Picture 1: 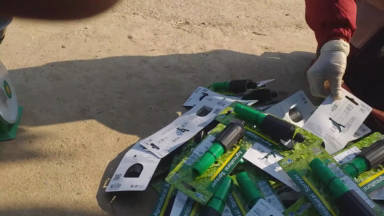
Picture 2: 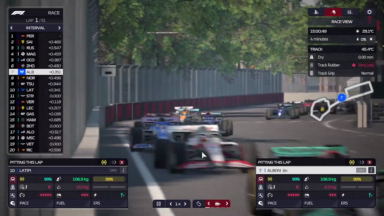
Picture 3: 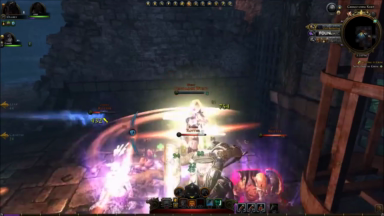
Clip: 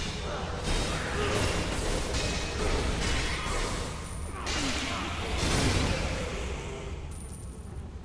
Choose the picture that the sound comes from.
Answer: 3